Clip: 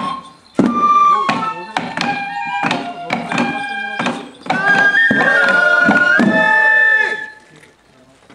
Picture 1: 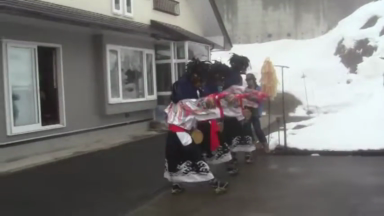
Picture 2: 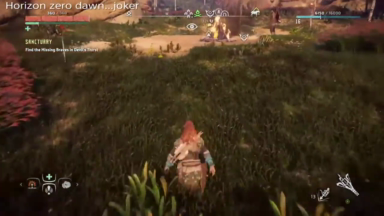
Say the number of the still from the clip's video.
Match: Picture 1